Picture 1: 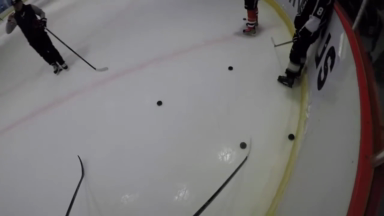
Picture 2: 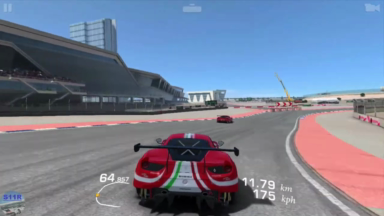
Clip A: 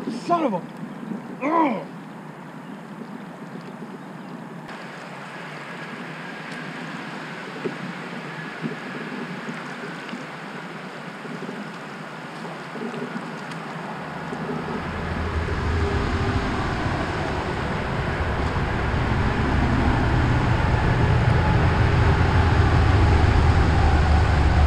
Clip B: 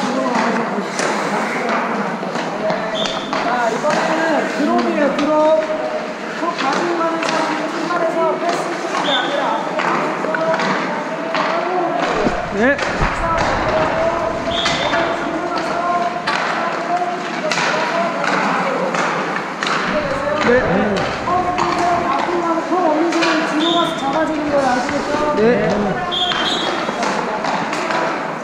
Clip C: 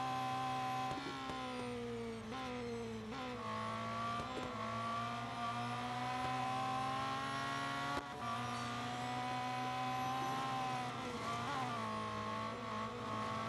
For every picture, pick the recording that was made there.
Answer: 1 B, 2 C